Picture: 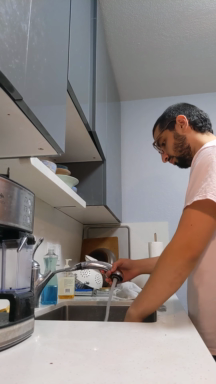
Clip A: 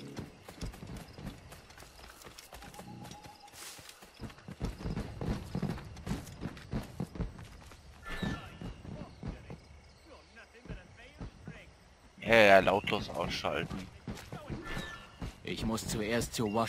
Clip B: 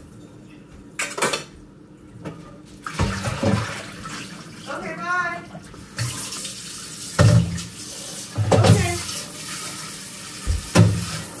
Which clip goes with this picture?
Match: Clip B